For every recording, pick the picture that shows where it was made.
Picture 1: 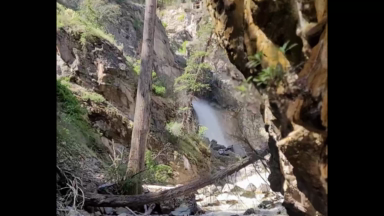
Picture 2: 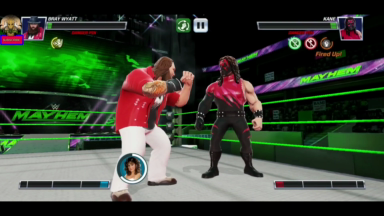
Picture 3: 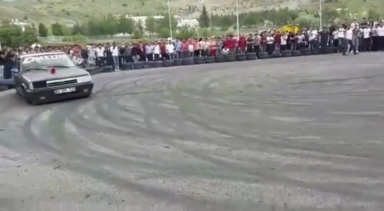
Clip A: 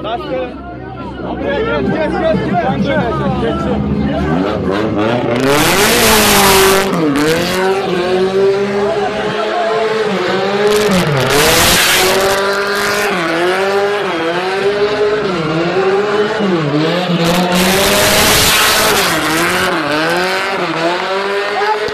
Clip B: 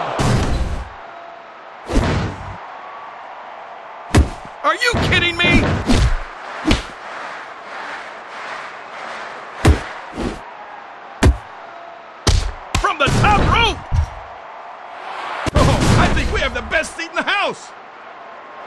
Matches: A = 3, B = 2